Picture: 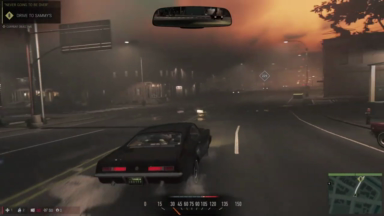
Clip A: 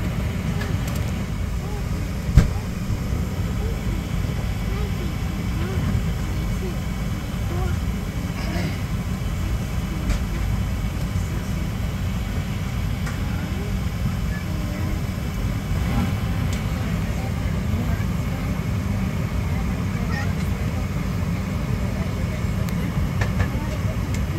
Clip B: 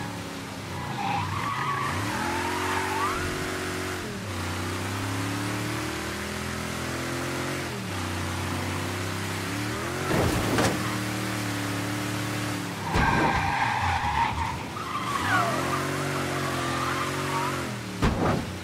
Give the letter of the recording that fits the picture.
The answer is B